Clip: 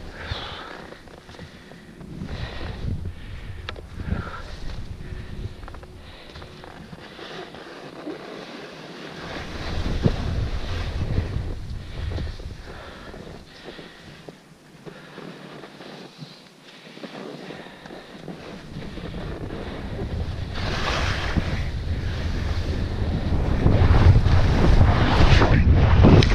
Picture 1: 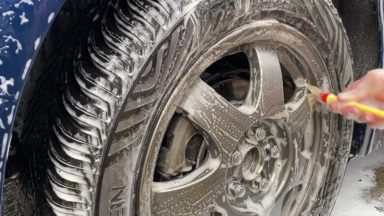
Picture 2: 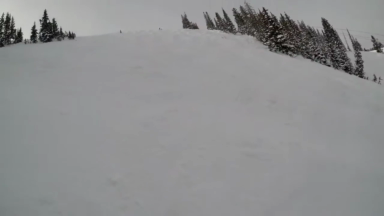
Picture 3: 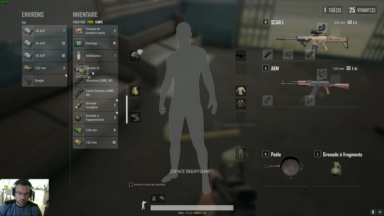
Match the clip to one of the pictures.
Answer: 2